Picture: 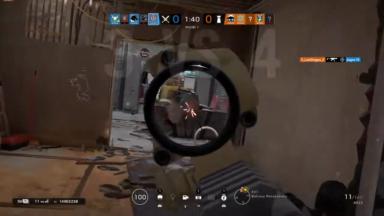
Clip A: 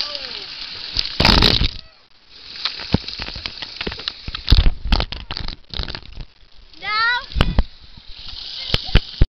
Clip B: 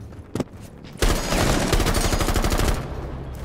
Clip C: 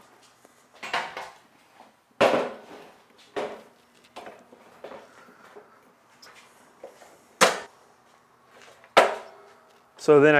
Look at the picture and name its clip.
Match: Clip B